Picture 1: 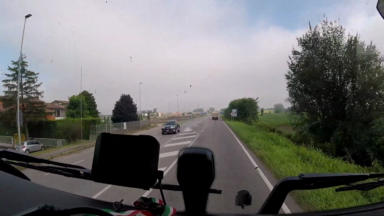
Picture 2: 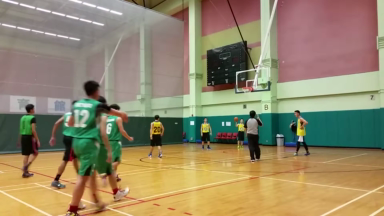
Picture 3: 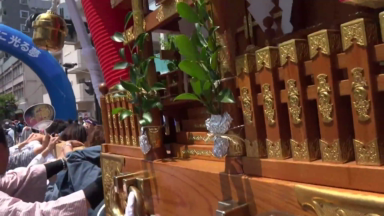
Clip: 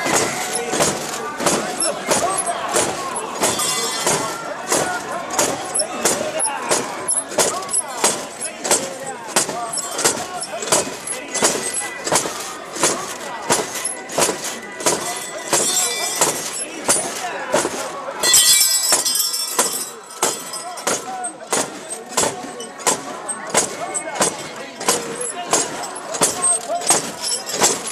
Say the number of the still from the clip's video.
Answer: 3